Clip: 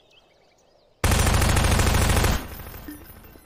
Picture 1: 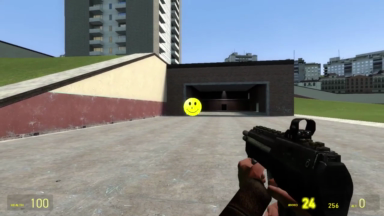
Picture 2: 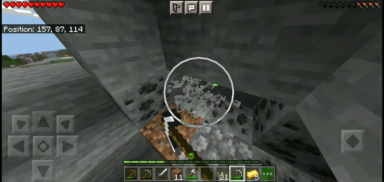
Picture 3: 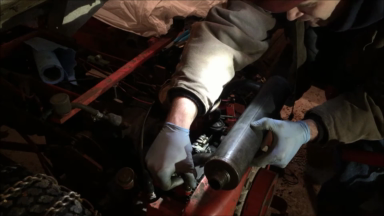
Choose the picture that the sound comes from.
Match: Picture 1